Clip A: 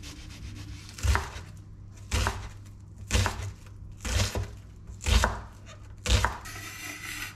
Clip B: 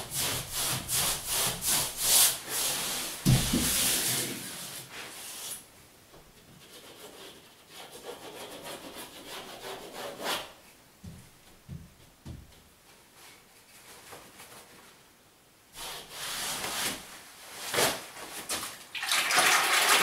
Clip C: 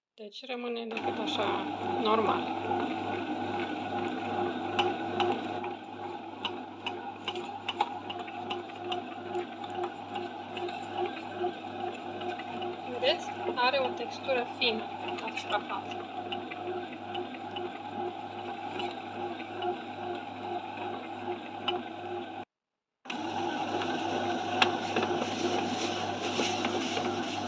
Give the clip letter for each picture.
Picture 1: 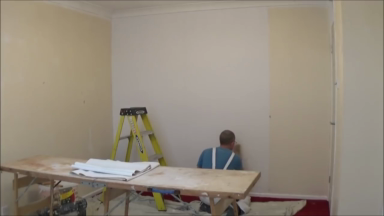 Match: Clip B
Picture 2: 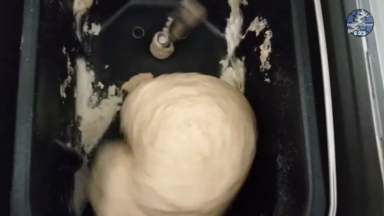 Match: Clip C